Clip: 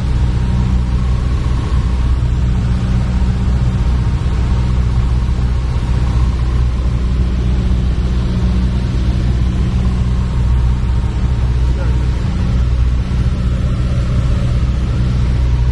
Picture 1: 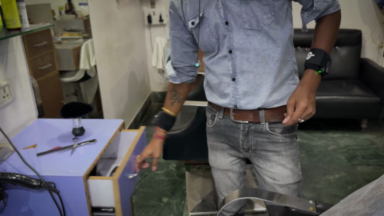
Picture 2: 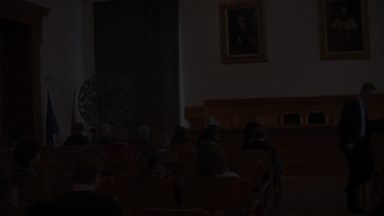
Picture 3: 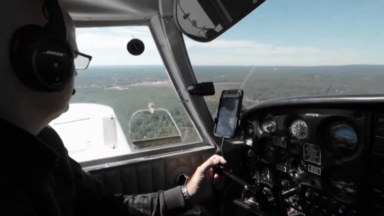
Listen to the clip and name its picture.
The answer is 3